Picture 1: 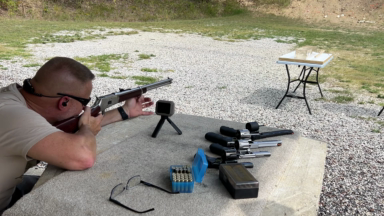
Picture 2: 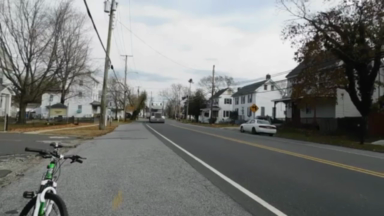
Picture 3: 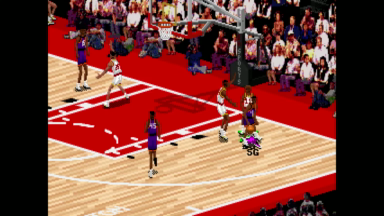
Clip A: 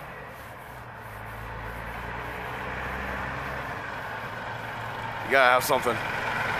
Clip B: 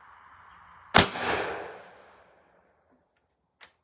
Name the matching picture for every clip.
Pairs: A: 2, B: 1